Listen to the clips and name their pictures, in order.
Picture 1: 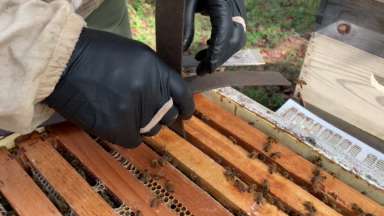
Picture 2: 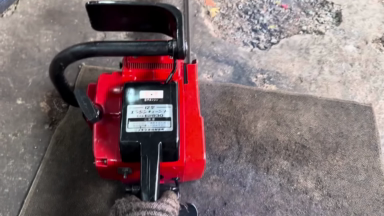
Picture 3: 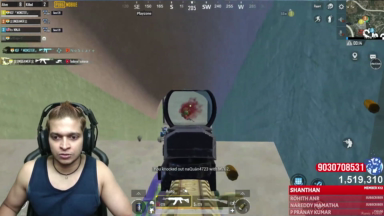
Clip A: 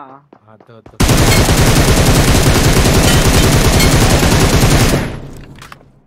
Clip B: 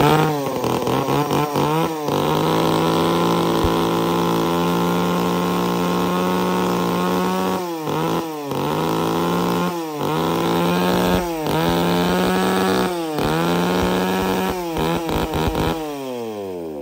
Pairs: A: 3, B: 2